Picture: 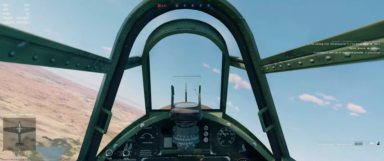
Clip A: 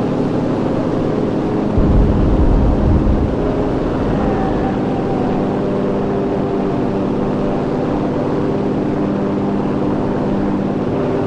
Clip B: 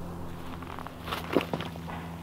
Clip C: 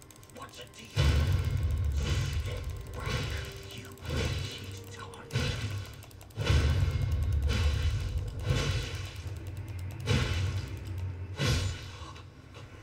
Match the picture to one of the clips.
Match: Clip A